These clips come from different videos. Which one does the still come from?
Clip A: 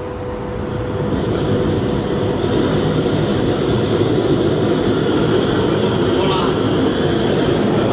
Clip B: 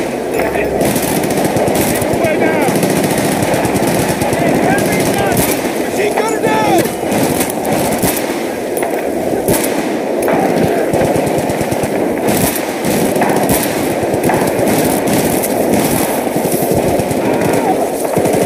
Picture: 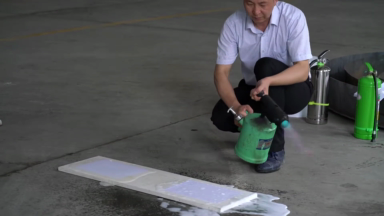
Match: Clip A